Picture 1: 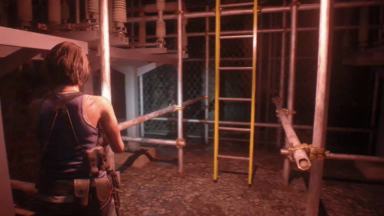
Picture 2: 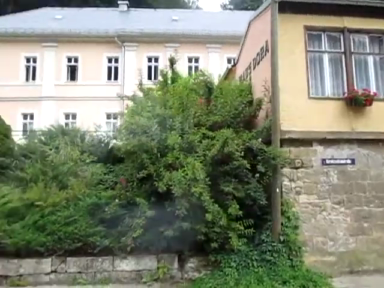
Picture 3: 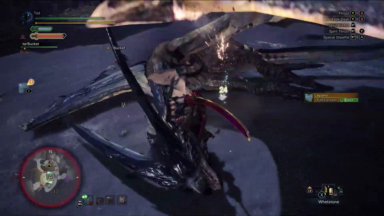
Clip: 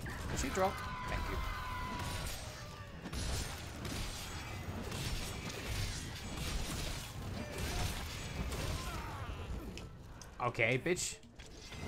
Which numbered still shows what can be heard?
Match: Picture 3